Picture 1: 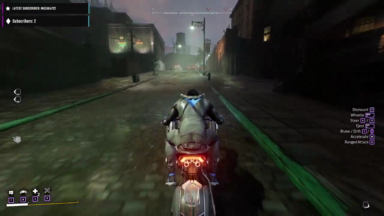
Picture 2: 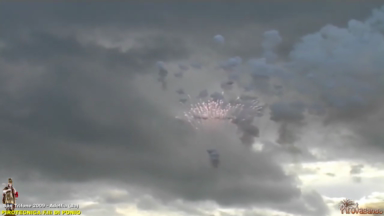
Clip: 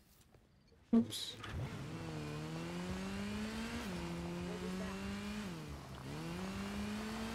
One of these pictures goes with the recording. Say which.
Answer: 1